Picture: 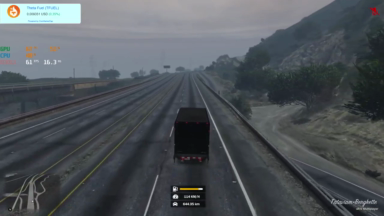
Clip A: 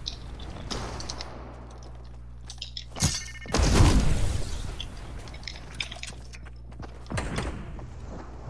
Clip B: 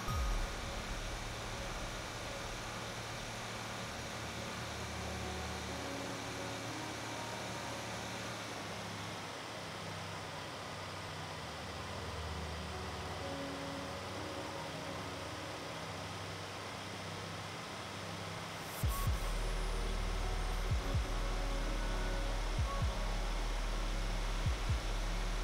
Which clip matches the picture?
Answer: B